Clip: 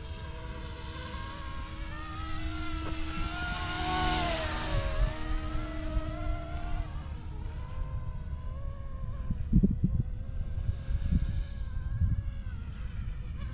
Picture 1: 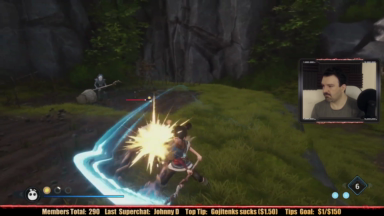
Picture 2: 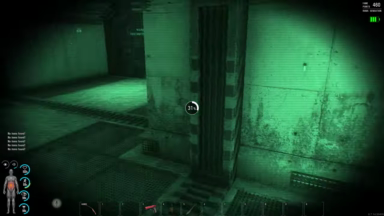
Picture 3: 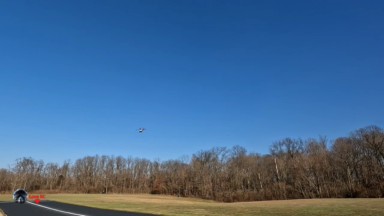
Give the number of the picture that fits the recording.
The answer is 3